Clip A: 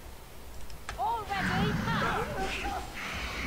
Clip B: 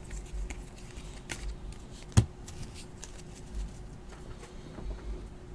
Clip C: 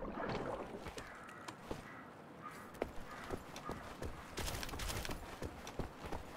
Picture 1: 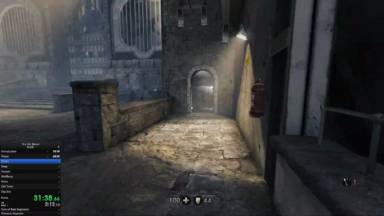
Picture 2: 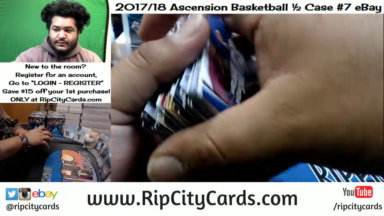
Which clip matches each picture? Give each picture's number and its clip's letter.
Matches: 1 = C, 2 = B